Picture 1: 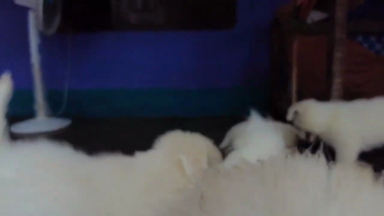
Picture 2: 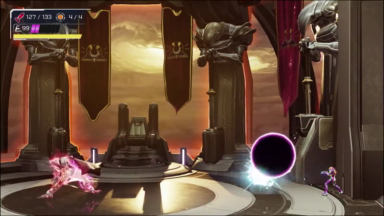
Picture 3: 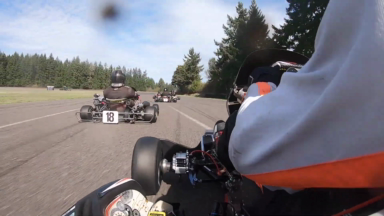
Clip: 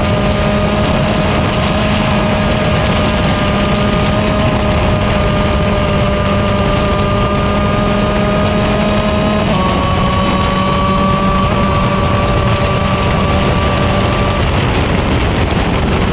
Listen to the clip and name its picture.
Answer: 3